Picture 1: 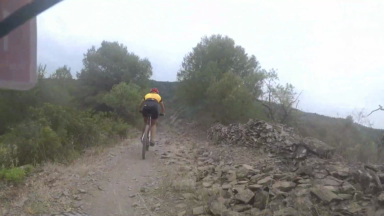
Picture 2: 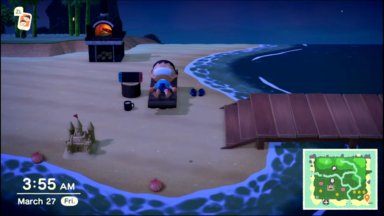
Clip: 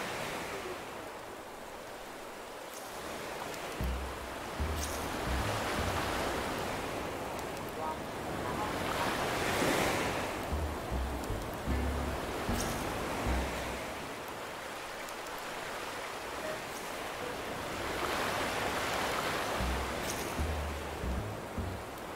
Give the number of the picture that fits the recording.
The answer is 2